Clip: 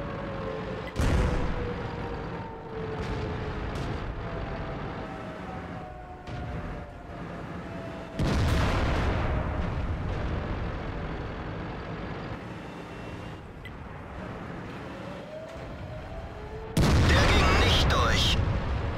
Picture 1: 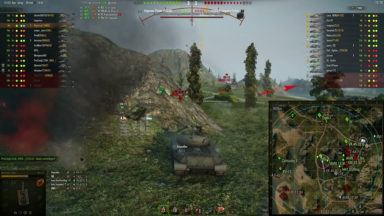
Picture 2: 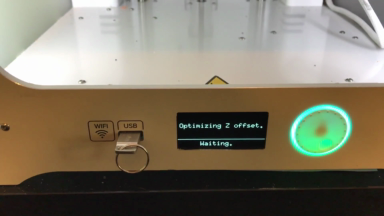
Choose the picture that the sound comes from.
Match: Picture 1